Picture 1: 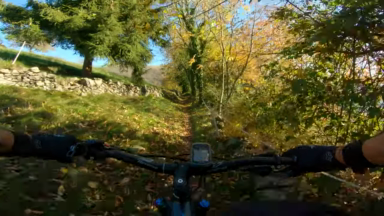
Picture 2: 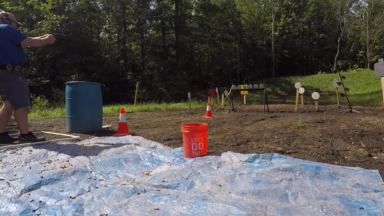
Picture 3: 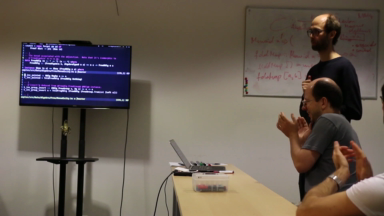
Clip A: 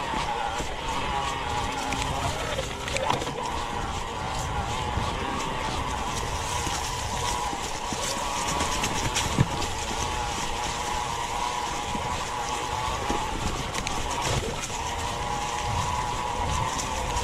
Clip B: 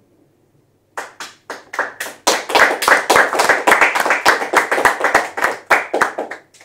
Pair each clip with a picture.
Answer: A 1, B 3